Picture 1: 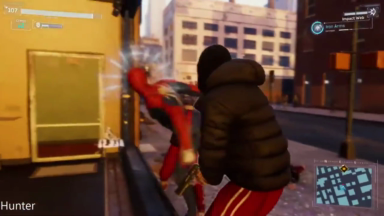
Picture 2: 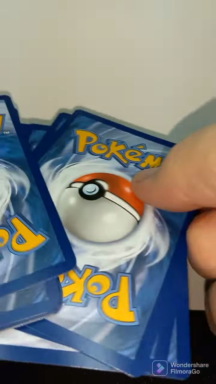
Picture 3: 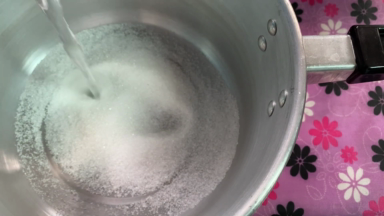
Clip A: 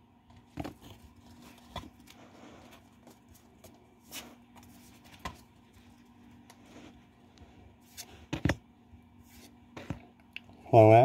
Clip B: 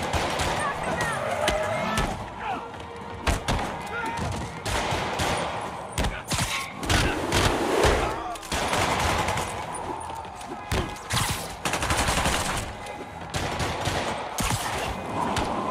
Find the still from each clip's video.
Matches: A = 2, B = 1